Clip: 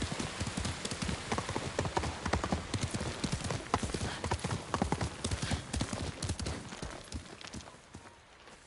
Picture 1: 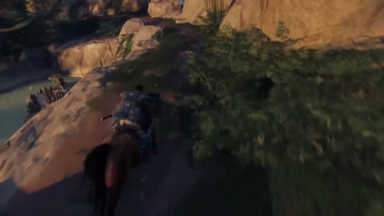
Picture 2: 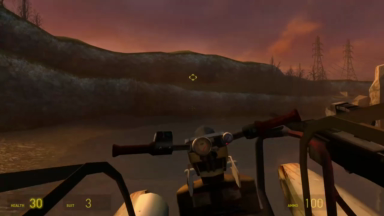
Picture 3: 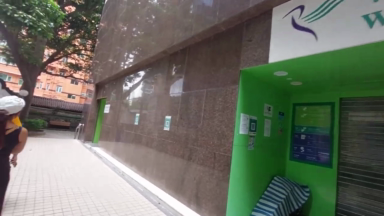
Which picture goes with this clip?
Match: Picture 1